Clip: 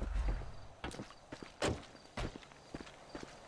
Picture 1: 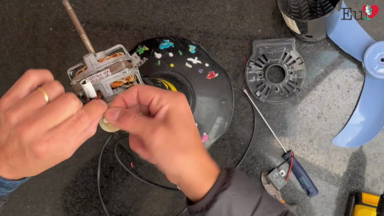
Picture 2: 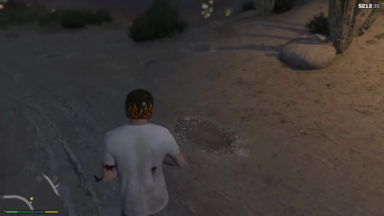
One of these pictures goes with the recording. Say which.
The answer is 2